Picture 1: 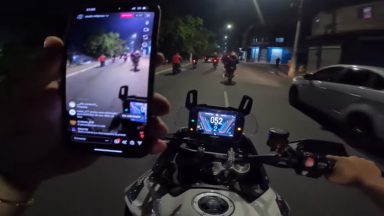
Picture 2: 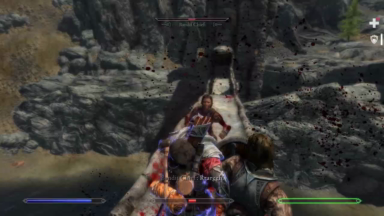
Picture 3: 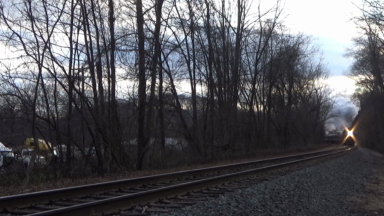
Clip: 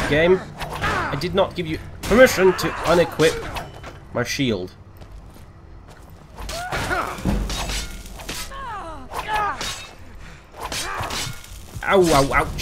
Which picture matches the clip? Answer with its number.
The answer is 2